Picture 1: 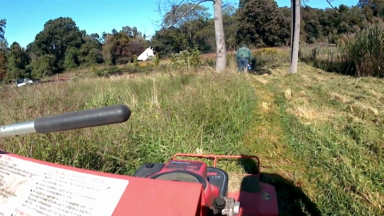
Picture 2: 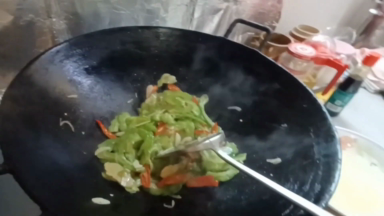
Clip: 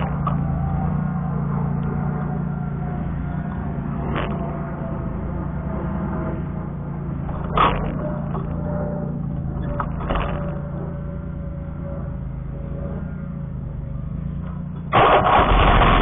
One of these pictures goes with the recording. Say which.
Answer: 1